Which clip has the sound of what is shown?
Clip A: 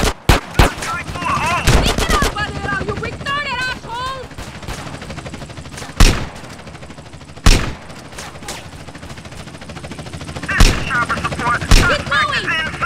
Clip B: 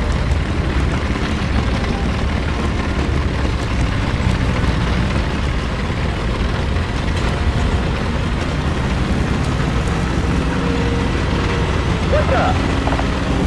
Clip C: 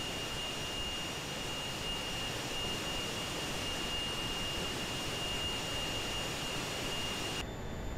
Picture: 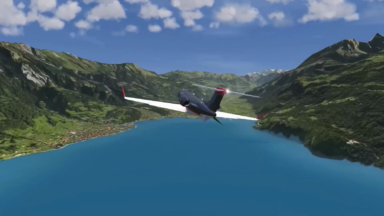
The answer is C